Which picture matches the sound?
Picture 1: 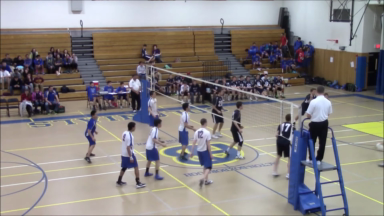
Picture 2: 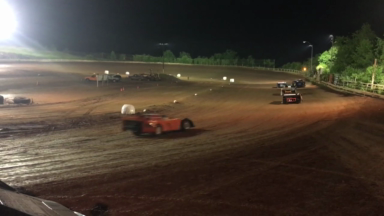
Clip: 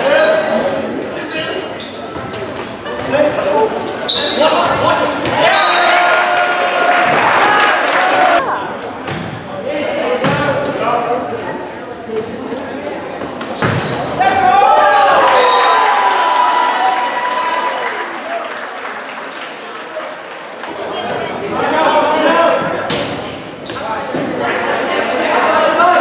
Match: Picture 1